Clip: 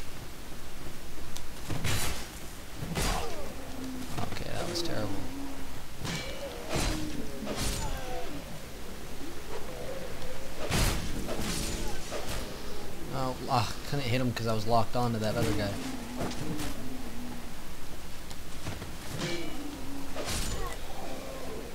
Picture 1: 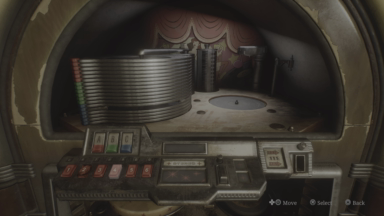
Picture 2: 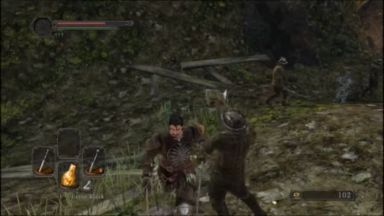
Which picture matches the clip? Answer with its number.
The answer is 2